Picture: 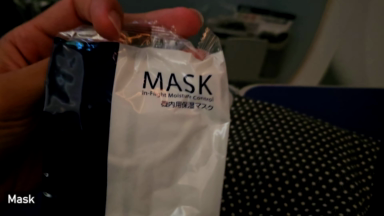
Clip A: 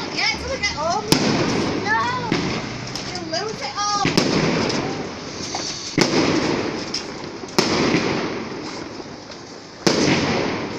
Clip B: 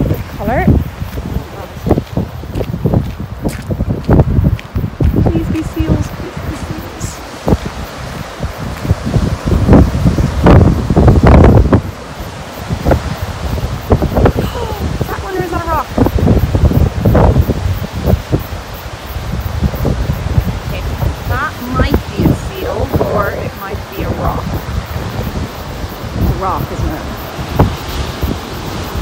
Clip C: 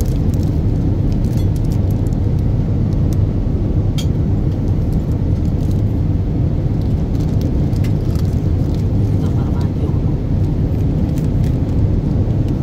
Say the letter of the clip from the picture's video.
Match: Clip C